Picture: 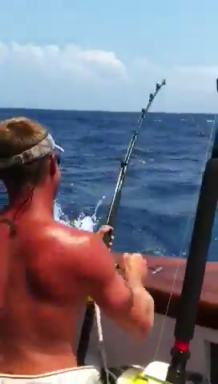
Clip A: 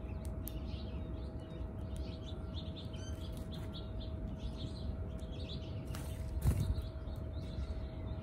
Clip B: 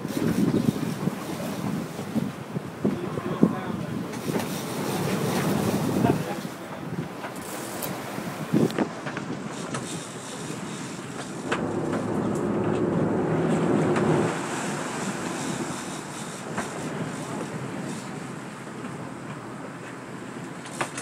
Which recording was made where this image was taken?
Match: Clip B